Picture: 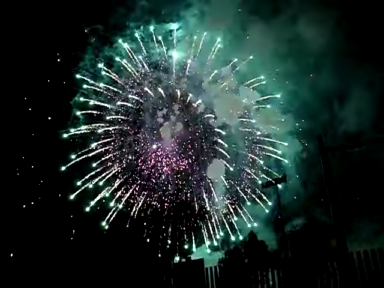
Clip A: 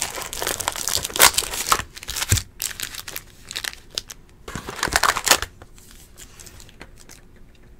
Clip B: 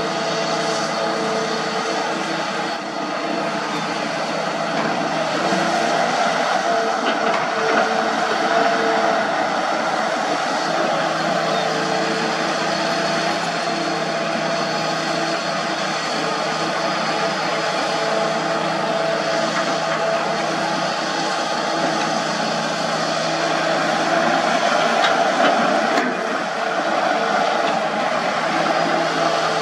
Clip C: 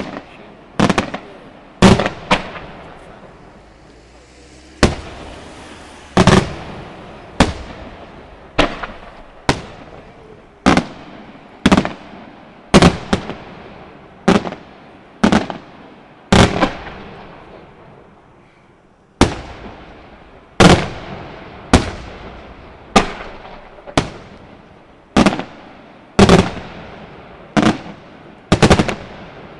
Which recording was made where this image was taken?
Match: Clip C